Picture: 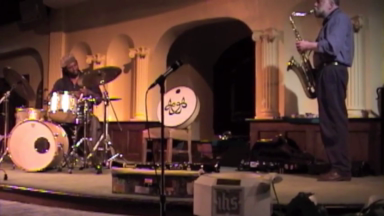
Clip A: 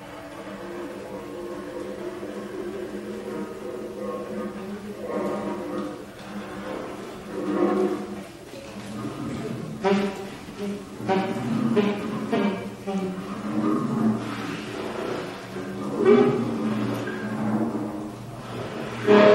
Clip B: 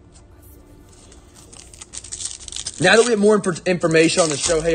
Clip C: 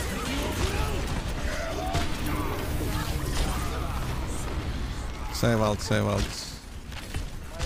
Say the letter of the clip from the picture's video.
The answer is A